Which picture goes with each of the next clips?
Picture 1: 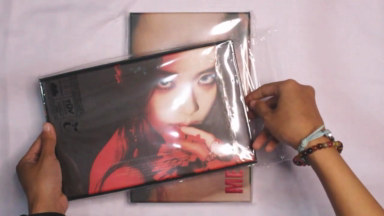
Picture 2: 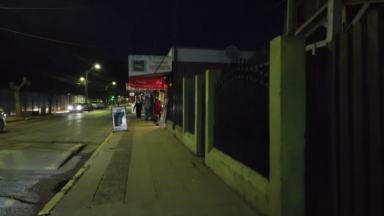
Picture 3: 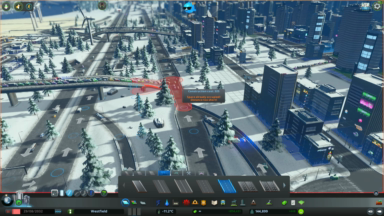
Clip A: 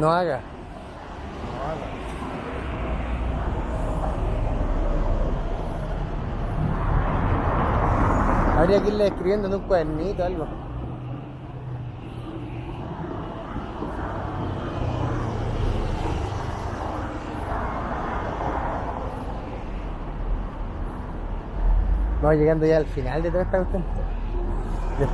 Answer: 2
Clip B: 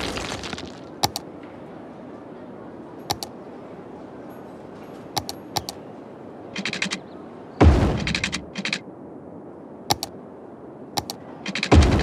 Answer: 3